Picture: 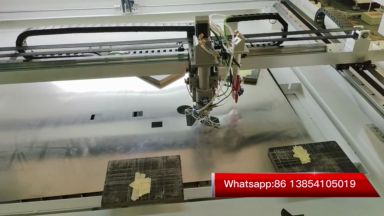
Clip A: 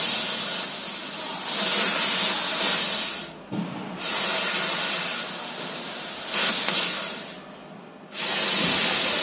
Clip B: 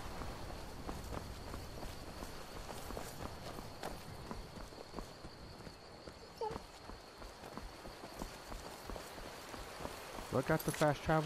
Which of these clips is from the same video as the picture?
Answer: A